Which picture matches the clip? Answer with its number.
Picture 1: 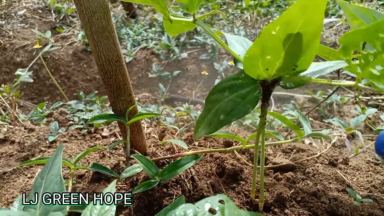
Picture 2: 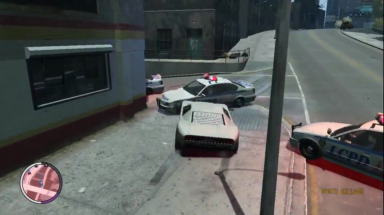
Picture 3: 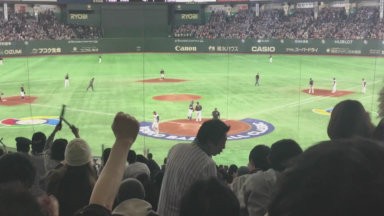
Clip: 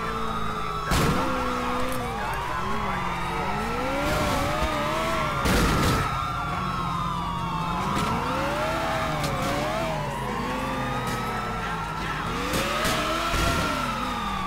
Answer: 2